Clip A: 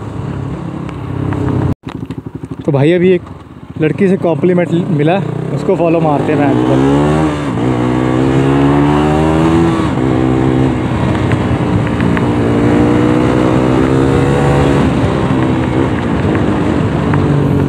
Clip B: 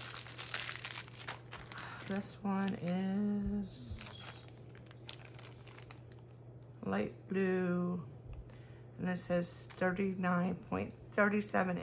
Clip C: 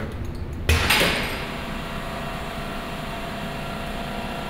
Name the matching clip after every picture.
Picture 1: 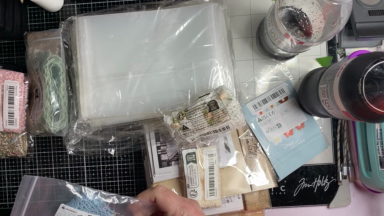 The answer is B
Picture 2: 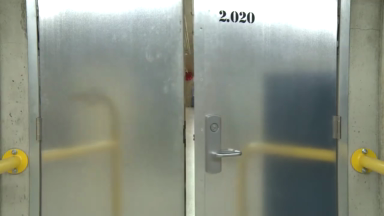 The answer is C